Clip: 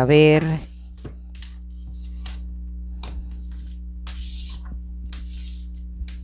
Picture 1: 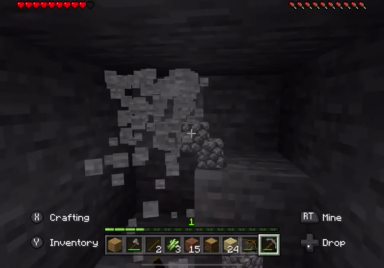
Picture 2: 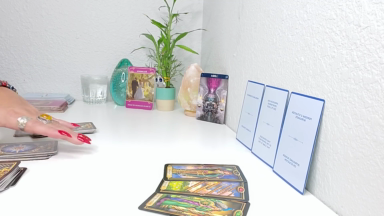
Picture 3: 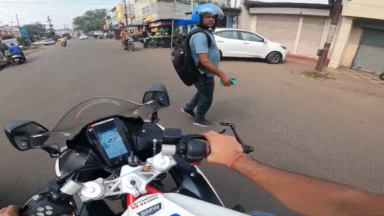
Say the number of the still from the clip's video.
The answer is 2